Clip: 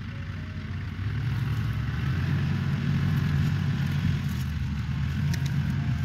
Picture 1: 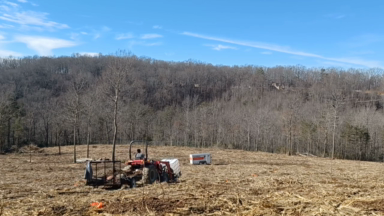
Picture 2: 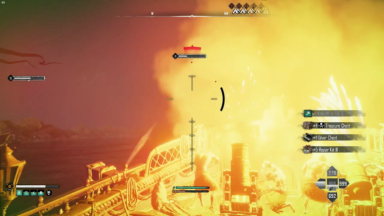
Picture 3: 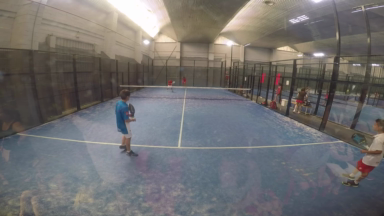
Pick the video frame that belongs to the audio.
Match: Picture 1